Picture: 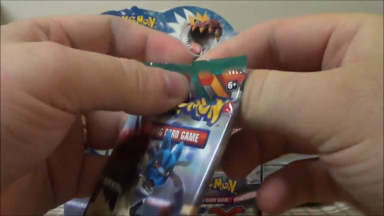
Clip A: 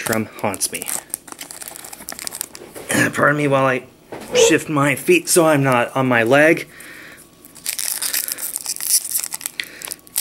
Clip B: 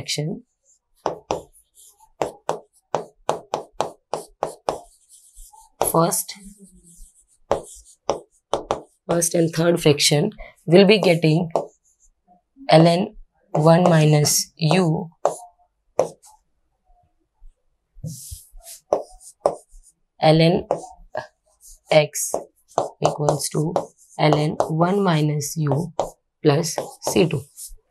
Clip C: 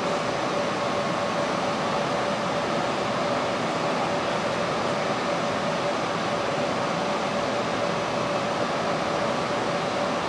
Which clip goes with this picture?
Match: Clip A